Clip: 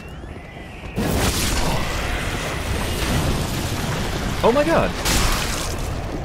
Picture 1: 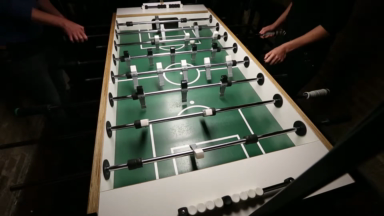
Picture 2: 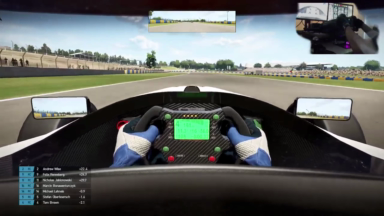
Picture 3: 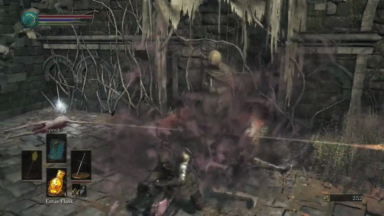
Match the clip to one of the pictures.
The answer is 3